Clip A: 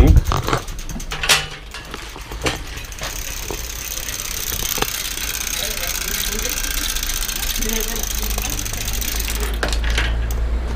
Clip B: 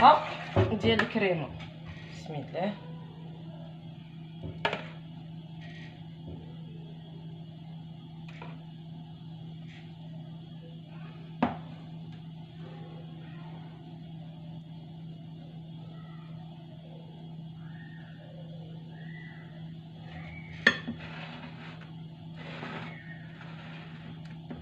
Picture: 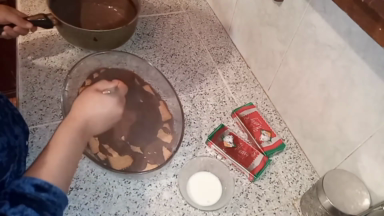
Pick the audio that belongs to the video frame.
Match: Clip B